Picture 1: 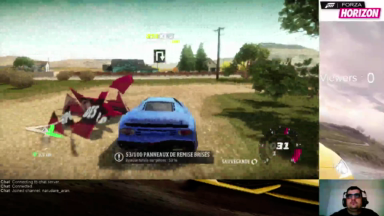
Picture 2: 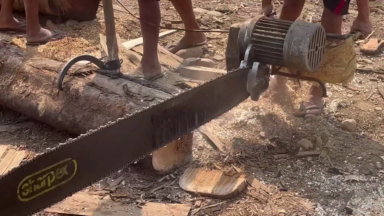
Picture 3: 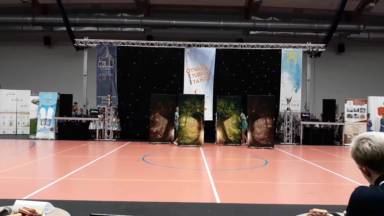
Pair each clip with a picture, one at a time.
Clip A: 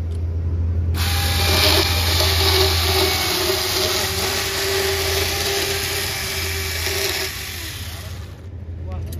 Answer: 2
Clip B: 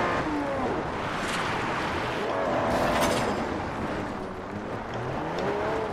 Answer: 1